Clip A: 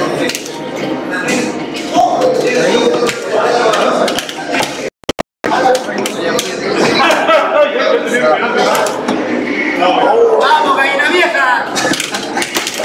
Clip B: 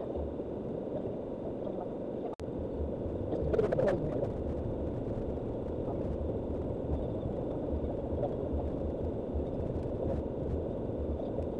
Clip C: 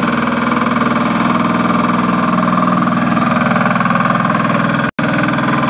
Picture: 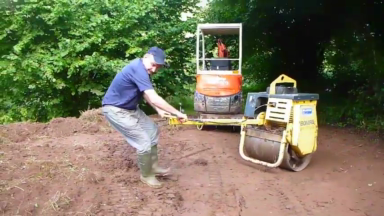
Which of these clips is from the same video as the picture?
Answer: C